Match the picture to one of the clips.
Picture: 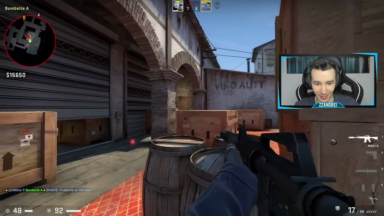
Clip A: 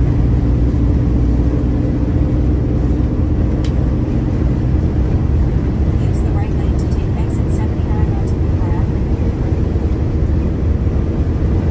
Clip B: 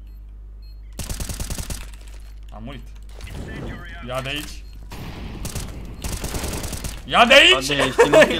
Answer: B